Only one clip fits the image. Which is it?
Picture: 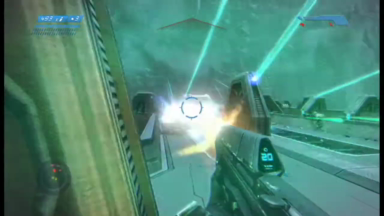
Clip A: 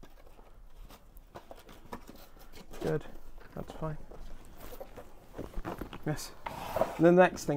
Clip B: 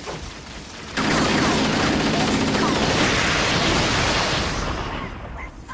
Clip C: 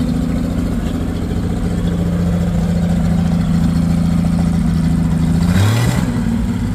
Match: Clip B